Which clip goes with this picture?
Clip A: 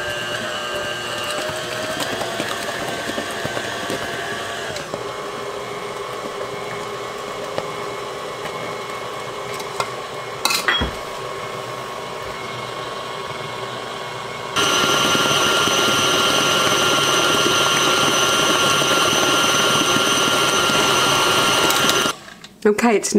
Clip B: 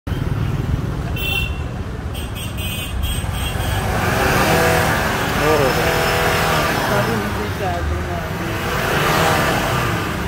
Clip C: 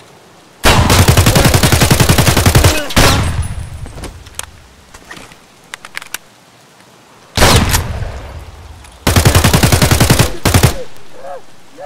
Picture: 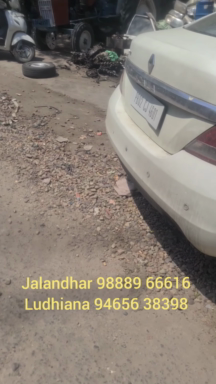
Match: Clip B